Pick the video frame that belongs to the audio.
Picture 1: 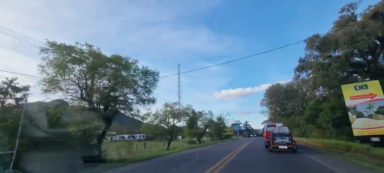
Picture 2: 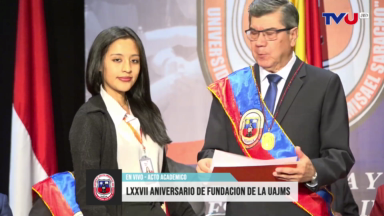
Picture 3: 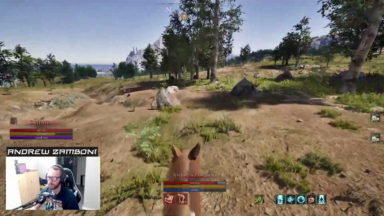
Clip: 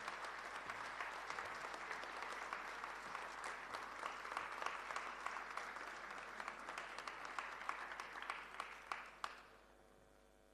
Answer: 2